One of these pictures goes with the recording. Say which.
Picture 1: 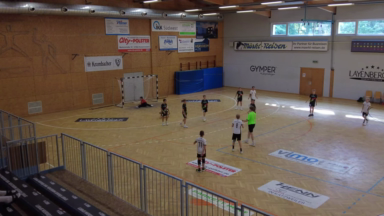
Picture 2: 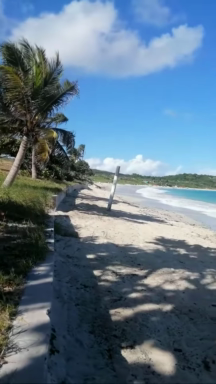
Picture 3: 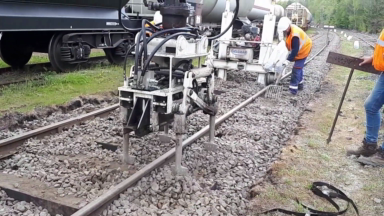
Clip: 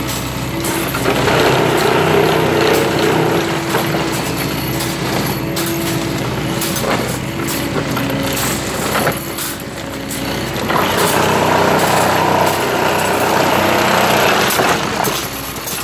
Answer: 3